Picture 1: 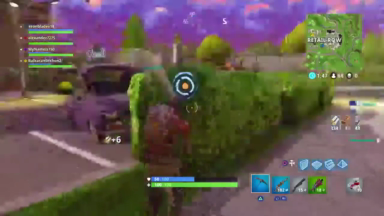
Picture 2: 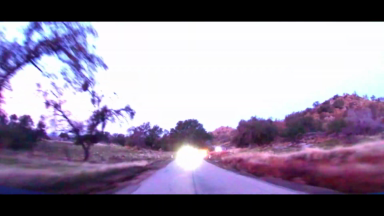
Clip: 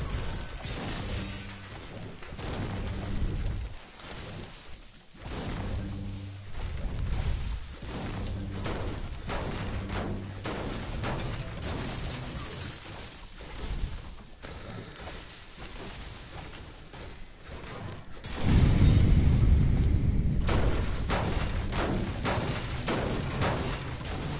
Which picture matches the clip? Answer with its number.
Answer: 1